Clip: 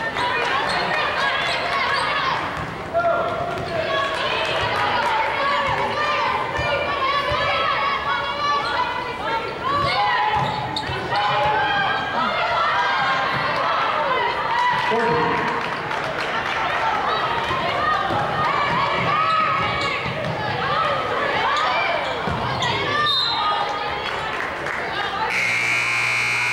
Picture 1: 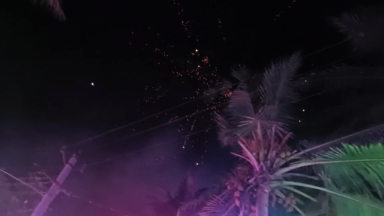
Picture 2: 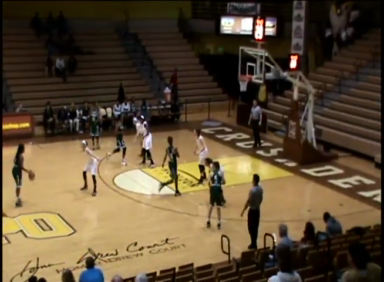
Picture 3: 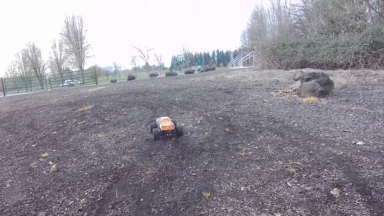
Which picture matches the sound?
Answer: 2